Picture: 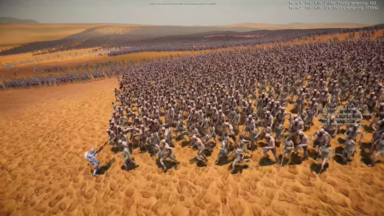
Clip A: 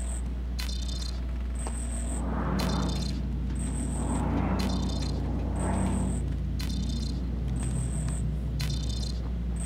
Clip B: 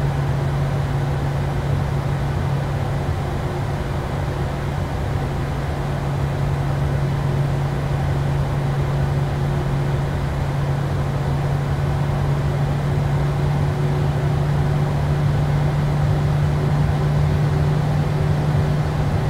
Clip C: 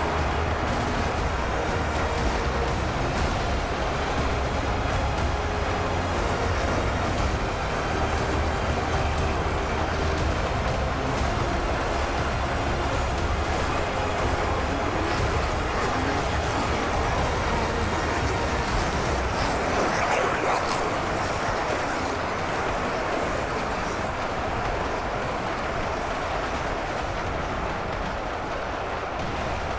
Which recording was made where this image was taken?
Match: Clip C